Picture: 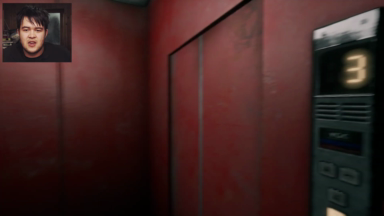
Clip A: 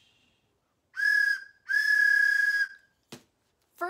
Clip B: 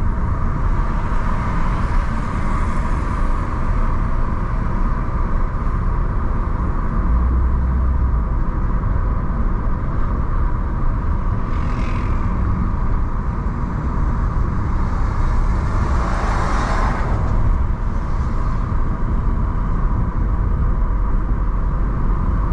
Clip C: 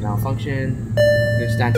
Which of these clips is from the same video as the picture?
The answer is C